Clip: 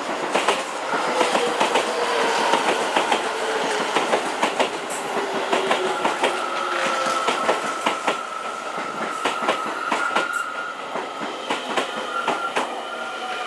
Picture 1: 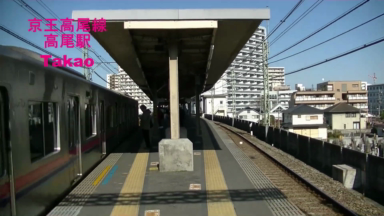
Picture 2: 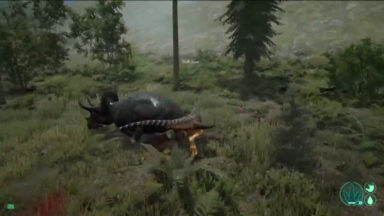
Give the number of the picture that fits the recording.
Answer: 1